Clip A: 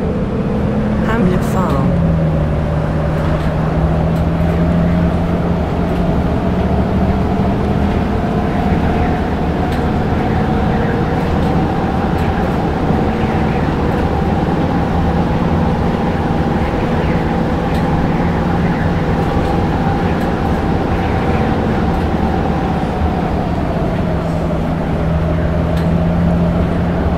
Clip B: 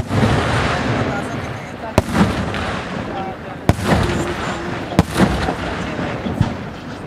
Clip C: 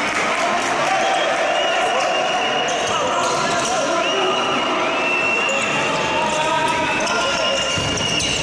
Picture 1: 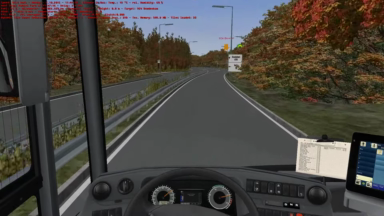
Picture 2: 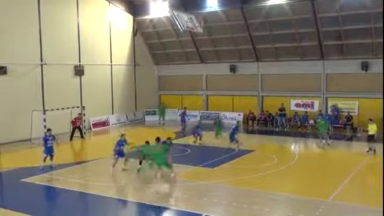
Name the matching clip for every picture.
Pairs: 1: A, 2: C